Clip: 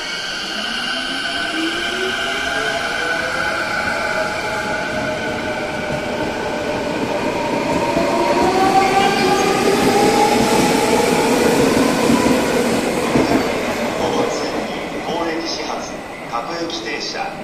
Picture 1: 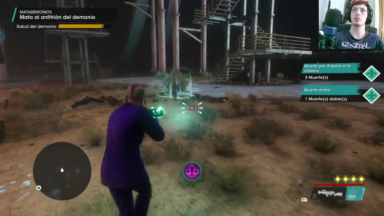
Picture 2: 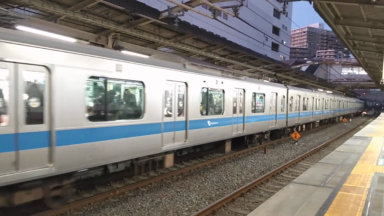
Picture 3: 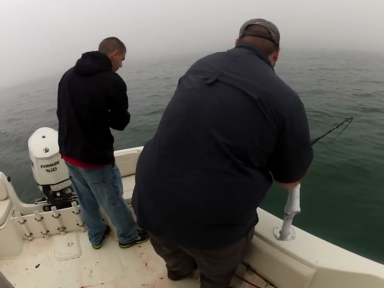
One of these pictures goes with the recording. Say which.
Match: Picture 2